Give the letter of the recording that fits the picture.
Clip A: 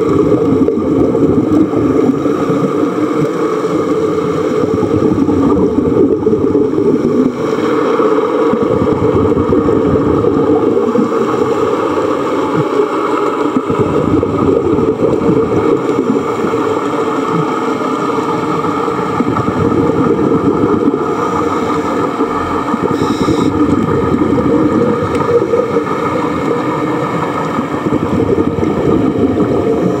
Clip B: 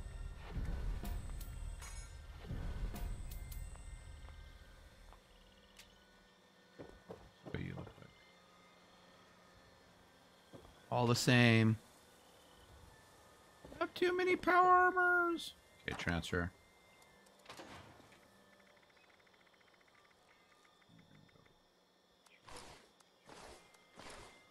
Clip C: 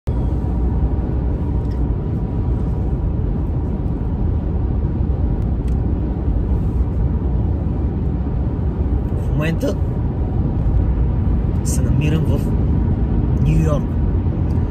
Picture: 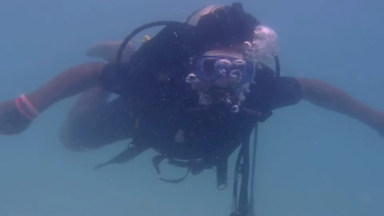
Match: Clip A